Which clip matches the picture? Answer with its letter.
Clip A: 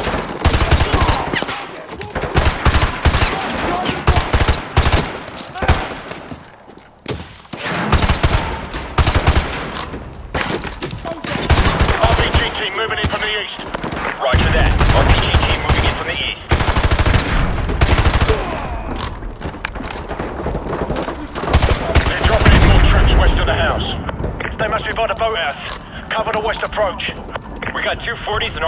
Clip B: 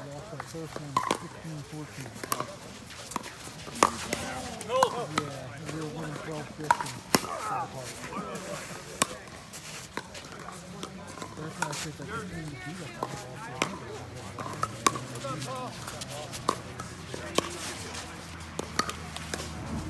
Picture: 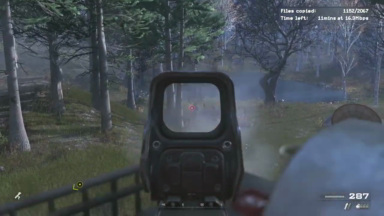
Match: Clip A